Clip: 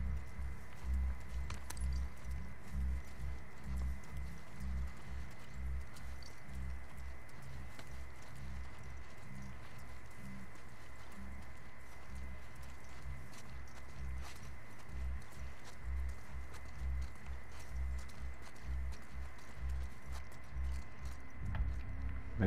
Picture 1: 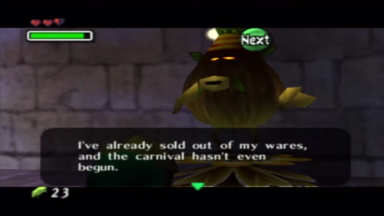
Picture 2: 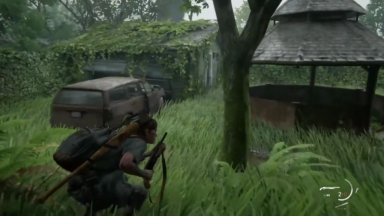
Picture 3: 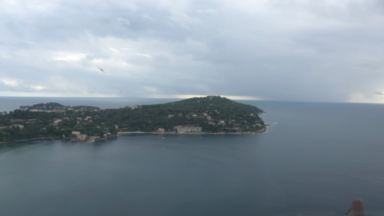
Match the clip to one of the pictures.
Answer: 2